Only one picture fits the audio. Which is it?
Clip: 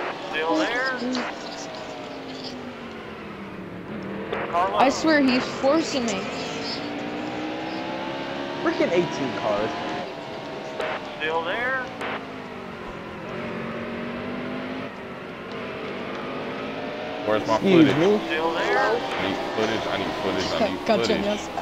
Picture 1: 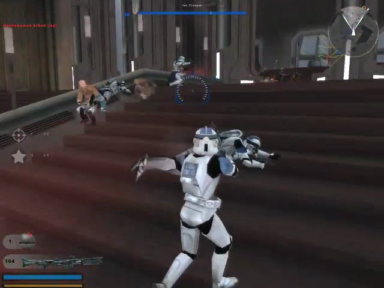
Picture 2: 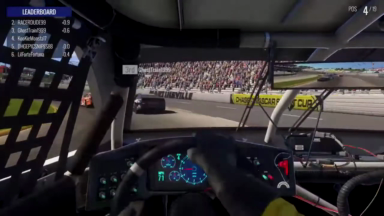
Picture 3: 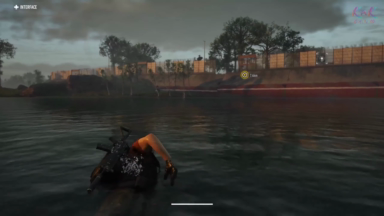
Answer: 2